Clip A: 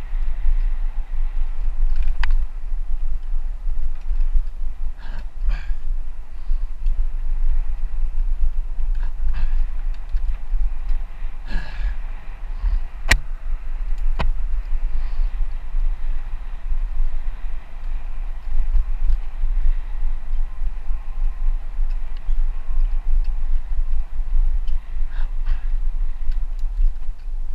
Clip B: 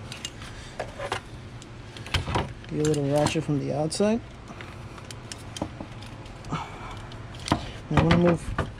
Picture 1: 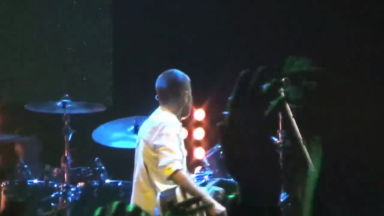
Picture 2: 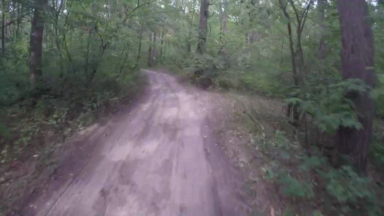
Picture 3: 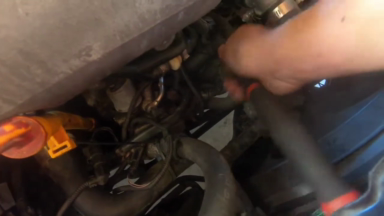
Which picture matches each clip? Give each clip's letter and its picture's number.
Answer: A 2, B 3